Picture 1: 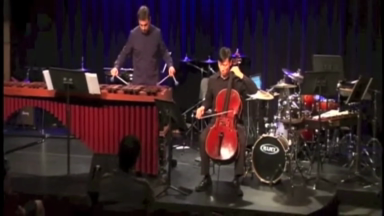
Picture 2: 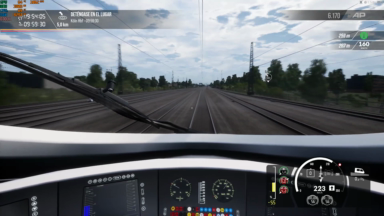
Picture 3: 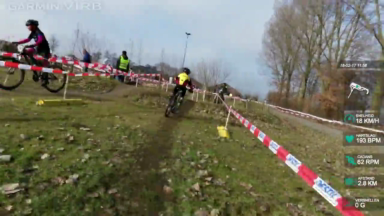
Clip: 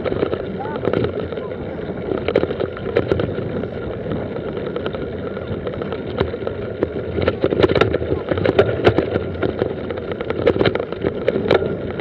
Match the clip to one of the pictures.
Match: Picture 3